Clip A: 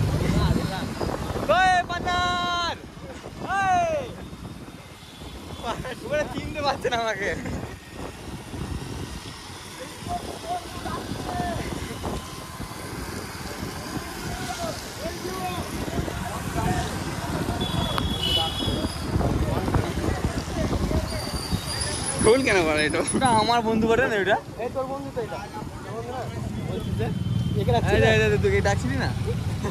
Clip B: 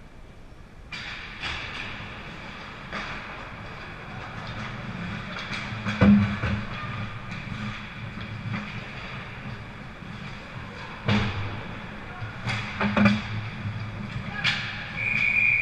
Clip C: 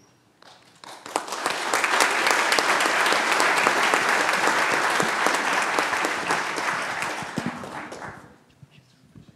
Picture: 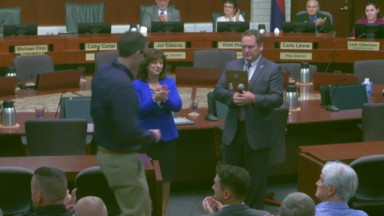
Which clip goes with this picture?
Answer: C